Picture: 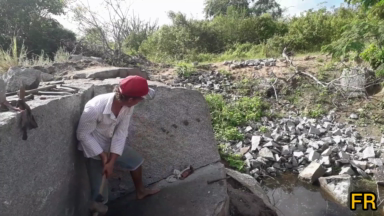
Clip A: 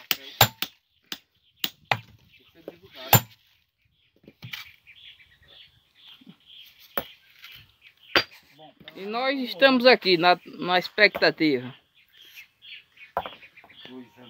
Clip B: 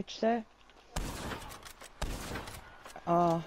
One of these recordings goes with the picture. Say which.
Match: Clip A